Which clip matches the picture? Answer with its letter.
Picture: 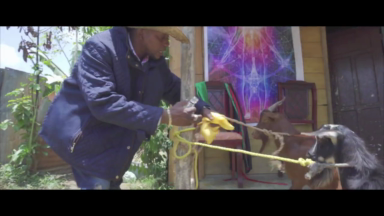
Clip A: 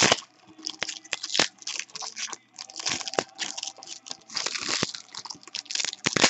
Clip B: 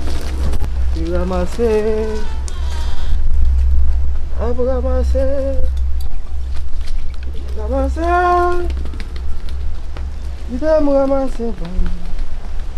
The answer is B